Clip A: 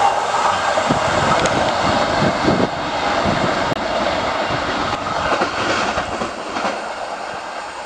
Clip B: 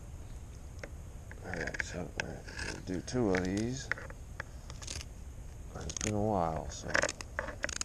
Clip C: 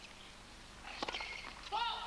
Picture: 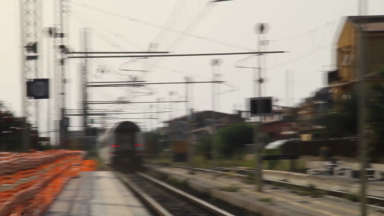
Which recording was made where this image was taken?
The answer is A